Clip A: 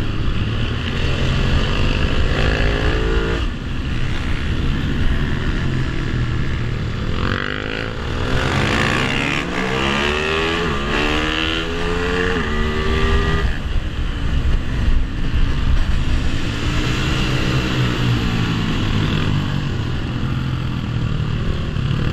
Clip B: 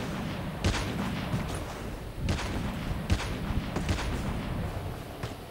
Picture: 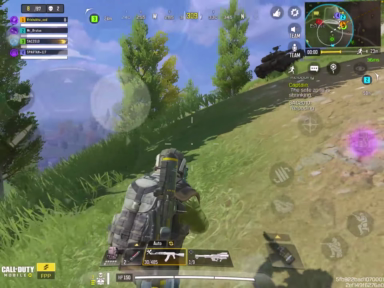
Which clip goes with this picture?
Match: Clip B